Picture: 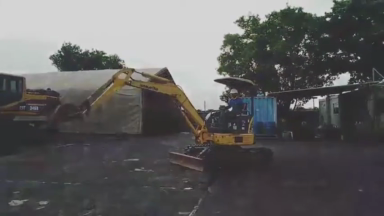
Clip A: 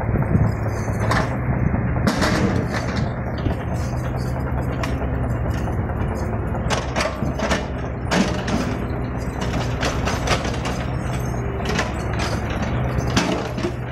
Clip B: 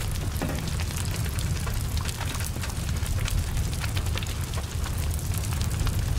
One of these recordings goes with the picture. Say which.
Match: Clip A